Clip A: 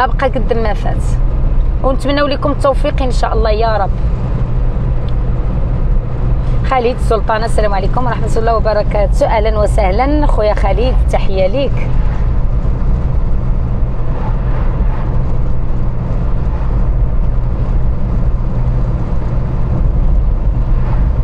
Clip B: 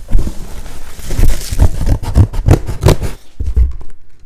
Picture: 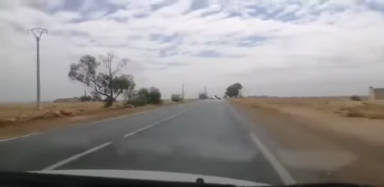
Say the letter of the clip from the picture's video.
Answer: A